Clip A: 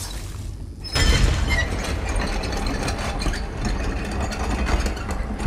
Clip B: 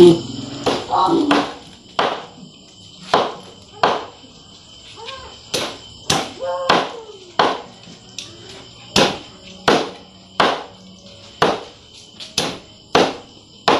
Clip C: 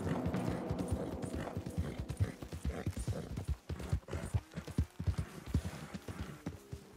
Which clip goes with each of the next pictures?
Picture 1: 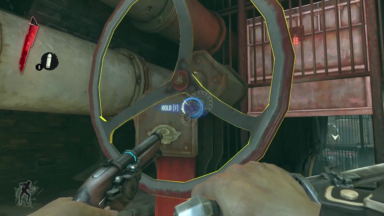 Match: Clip A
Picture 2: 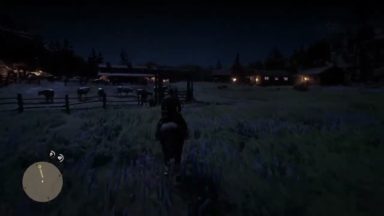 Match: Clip C